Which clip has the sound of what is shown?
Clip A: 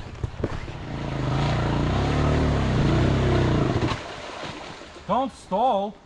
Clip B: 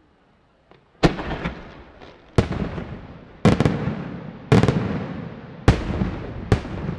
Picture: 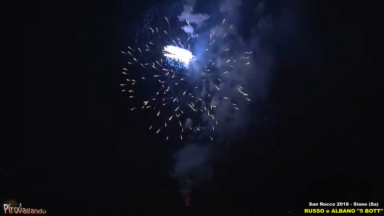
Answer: B